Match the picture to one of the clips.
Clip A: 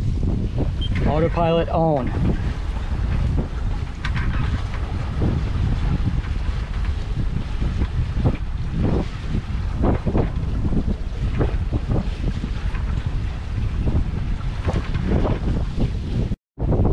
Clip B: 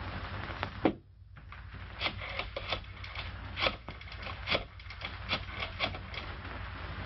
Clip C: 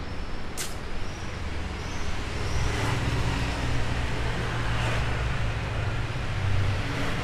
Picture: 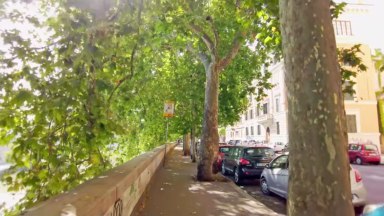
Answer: C